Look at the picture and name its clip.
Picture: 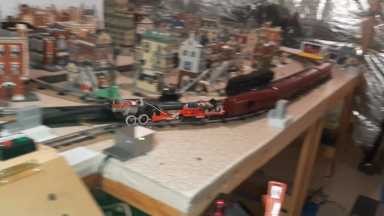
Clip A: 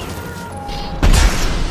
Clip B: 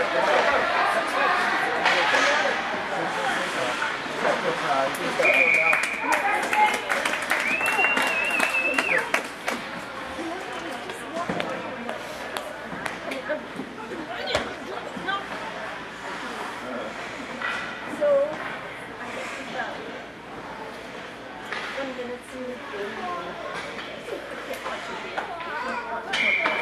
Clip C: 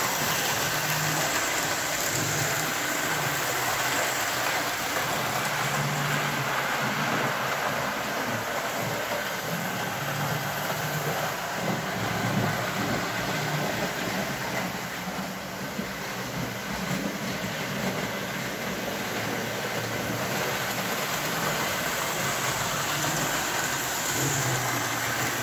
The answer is C